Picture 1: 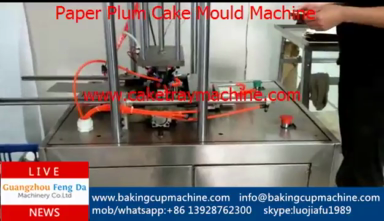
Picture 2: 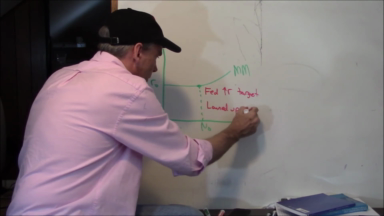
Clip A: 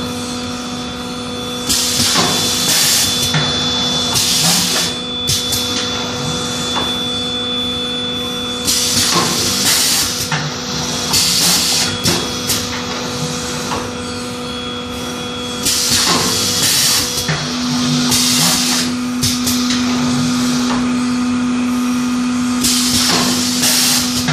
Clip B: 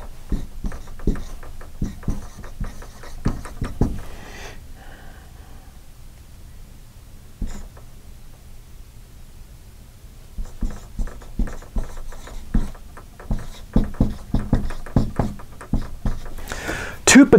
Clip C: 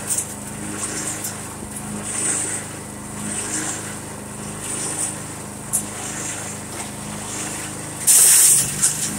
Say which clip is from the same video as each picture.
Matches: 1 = A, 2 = B